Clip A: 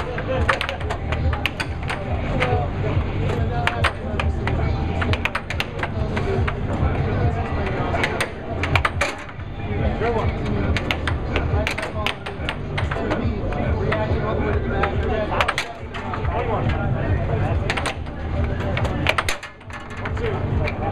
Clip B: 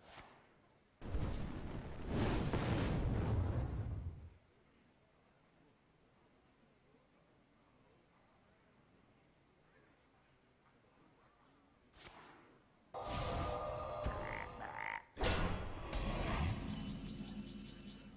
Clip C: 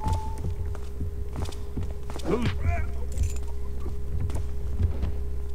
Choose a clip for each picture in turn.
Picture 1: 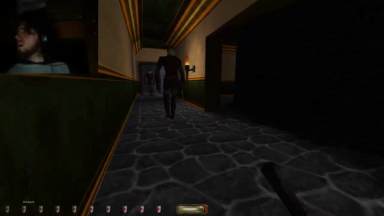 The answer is C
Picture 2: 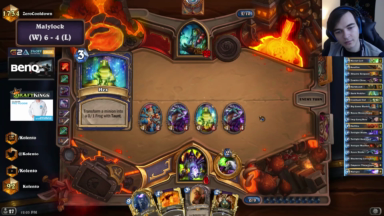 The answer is B